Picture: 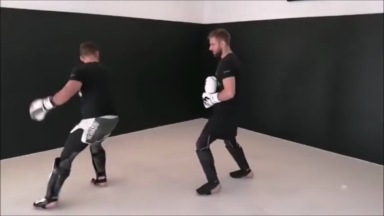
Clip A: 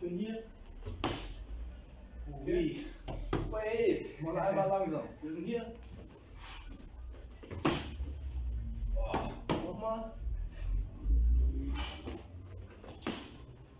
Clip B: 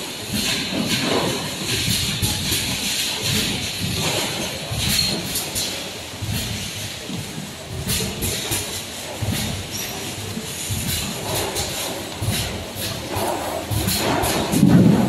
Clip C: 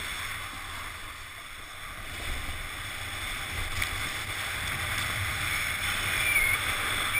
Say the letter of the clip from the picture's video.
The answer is A